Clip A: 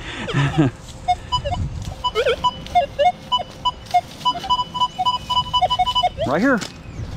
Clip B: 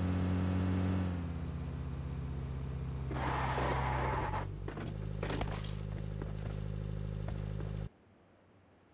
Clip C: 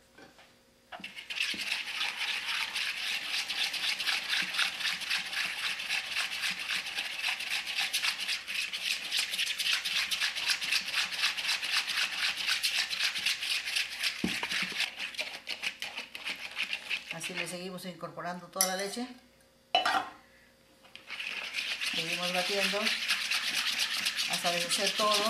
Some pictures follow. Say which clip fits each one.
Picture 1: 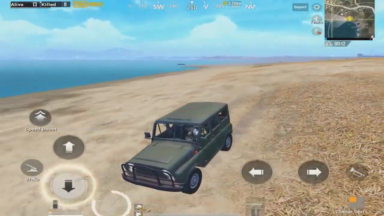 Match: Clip B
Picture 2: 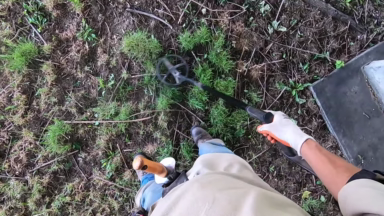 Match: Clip A